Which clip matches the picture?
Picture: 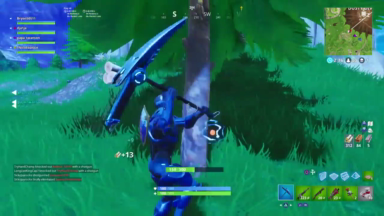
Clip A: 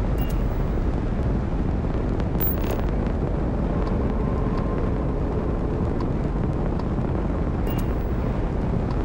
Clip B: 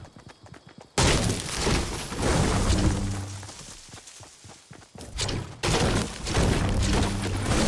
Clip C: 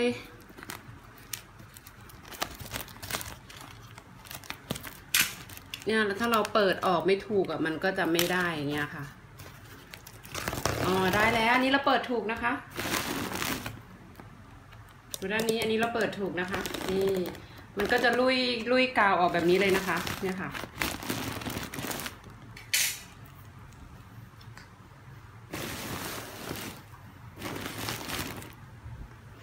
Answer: B